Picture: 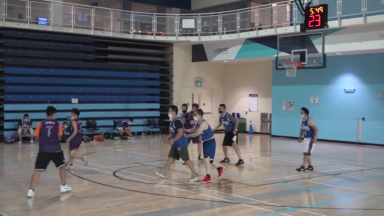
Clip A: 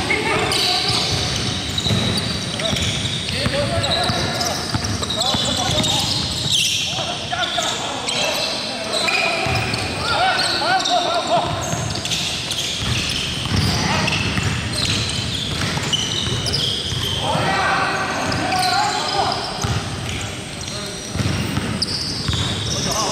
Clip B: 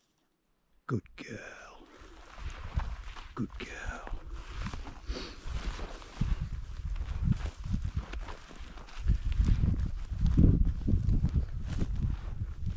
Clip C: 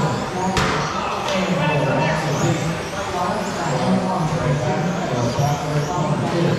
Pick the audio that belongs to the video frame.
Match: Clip A